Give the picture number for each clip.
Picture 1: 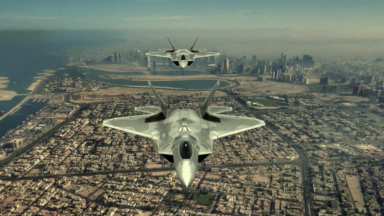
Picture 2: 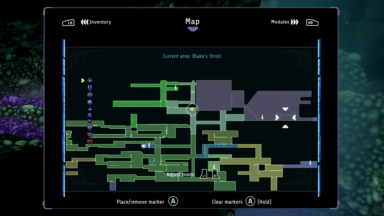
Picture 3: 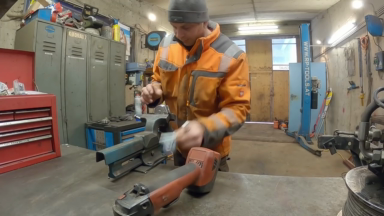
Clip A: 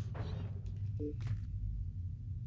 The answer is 2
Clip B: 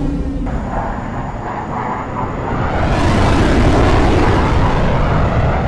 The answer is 1